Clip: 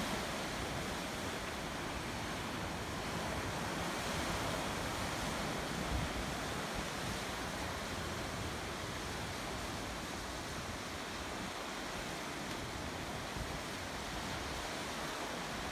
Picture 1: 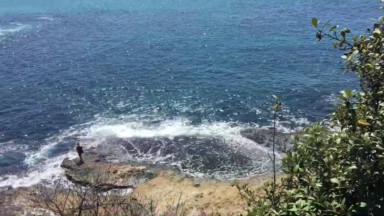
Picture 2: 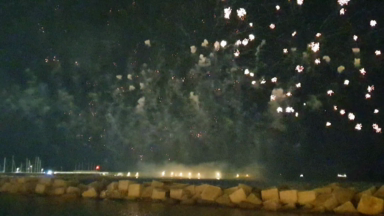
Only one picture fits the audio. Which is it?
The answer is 1